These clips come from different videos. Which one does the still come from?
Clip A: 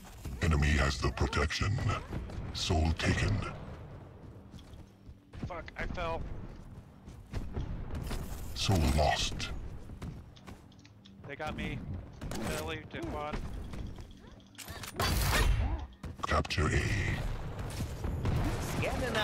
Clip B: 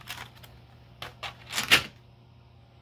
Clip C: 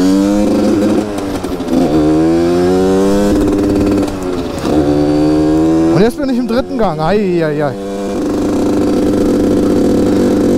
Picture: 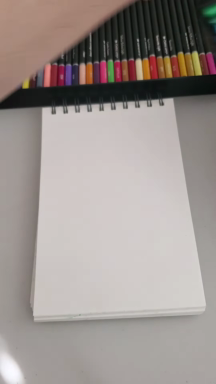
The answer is B